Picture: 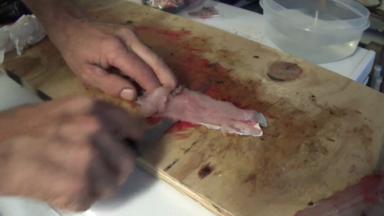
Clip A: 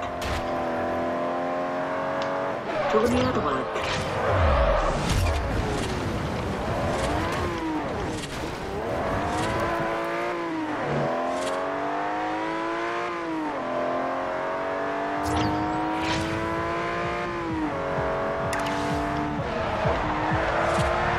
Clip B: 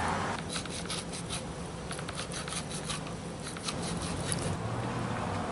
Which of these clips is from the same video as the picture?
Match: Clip B